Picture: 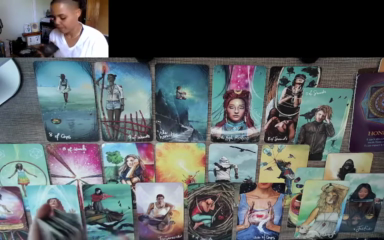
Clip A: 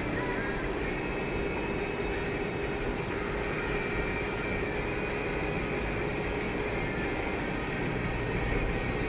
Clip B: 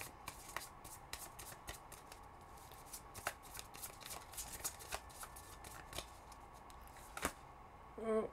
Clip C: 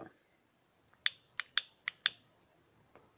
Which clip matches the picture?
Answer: B